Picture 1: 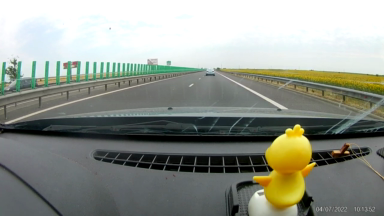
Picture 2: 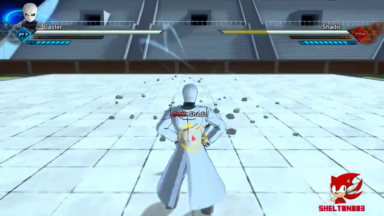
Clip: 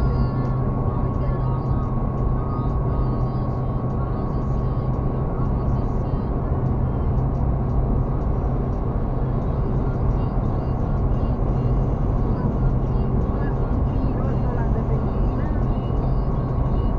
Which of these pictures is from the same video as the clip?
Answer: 1